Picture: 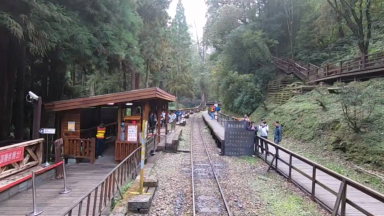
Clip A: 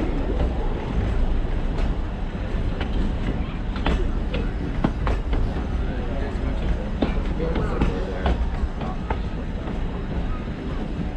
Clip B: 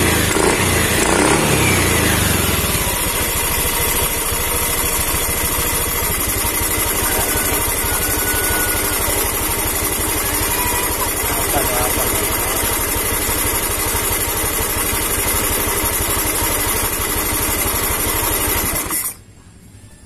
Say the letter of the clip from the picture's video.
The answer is A